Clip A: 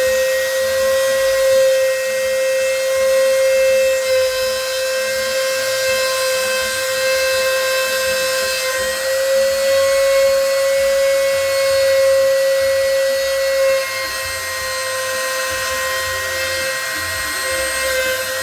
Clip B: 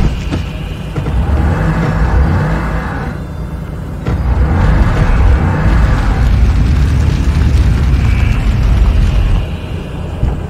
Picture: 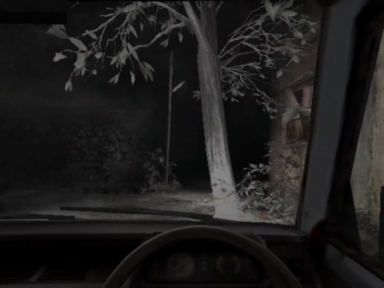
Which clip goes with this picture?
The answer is B